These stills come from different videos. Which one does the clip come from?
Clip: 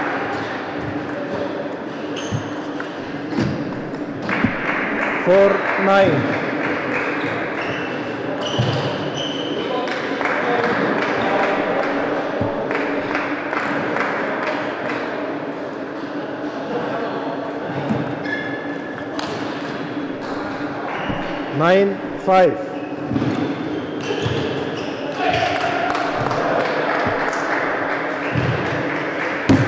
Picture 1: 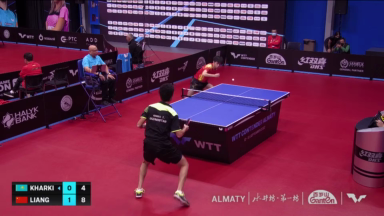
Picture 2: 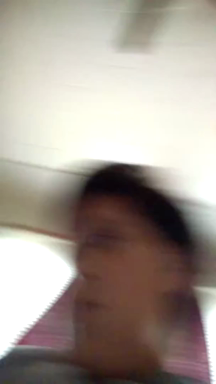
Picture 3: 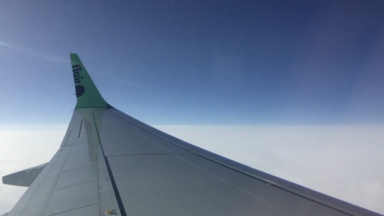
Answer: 1